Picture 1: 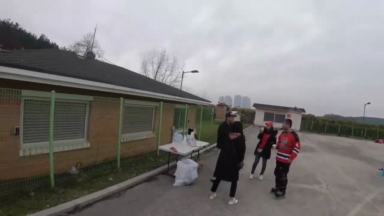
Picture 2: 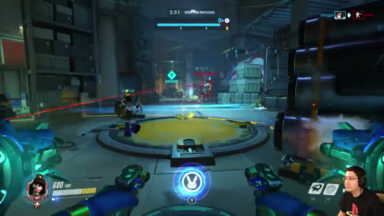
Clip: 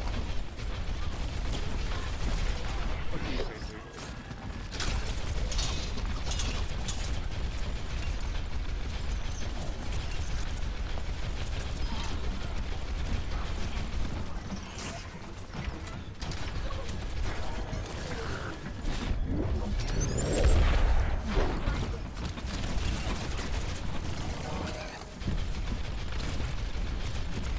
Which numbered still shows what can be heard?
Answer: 2